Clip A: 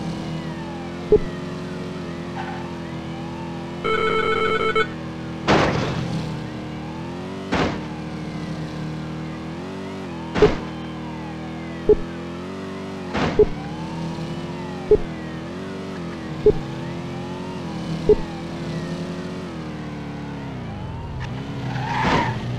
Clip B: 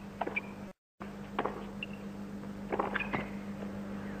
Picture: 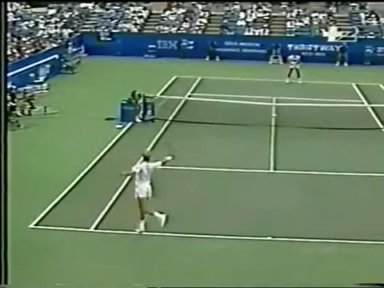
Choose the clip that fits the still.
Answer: B